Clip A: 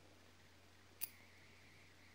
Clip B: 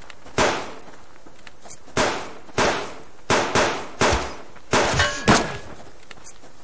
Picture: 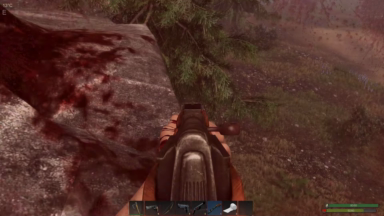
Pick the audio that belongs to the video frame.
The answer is B